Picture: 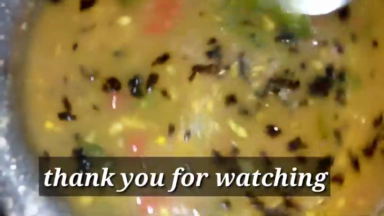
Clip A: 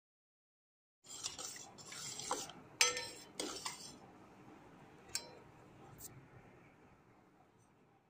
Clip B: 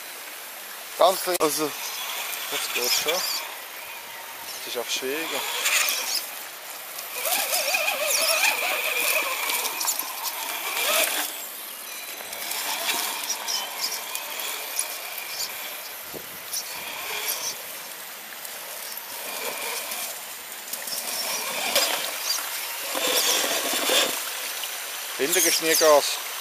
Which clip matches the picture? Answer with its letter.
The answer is A